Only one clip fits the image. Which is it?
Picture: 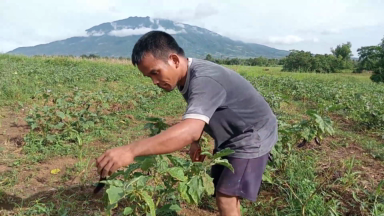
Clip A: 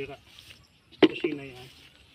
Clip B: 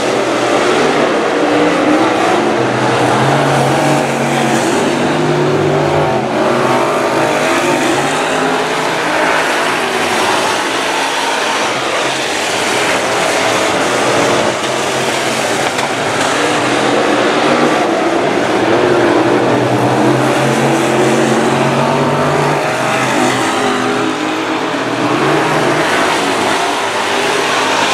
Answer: A